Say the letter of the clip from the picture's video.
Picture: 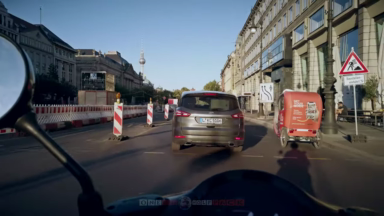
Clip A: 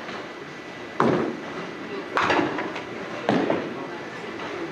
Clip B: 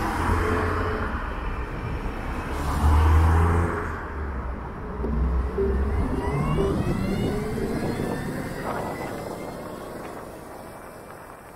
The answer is B